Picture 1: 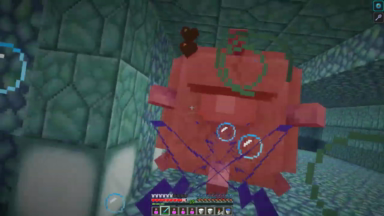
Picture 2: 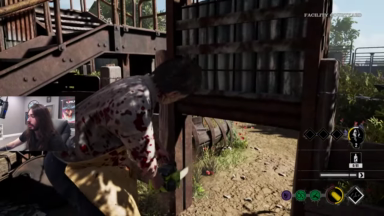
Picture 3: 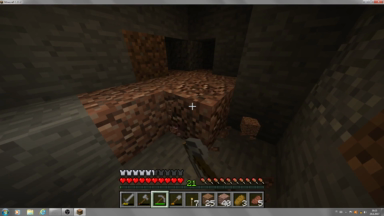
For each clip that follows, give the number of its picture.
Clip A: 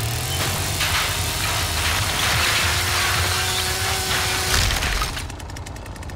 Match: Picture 2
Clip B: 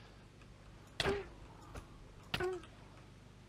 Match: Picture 1